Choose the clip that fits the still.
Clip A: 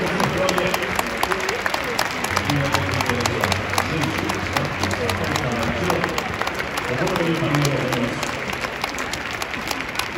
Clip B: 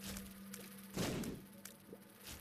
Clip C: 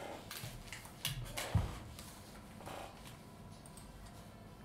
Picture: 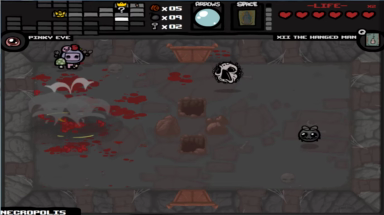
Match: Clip B